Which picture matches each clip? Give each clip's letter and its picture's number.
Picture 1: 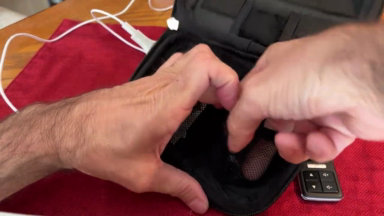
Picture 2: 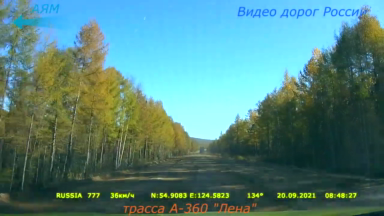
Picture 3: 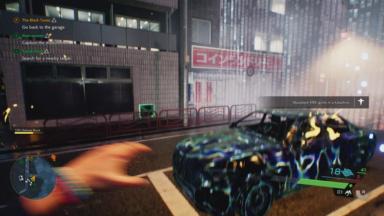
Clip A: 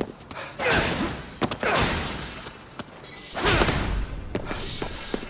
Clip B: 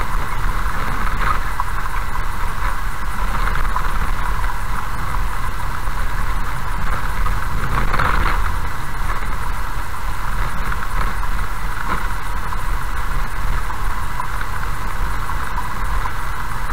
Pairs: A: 3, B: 2